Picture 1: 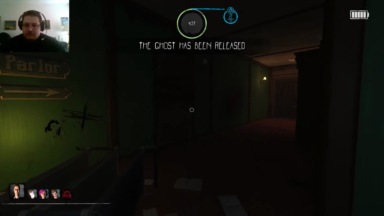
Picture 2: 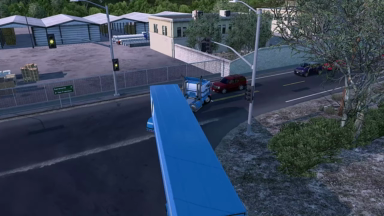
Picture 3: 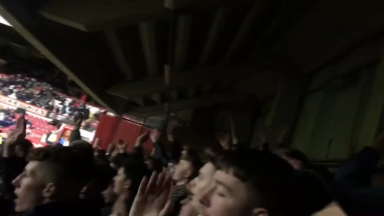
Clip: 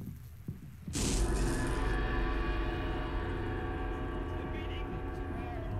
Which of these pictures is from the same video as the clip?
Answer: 1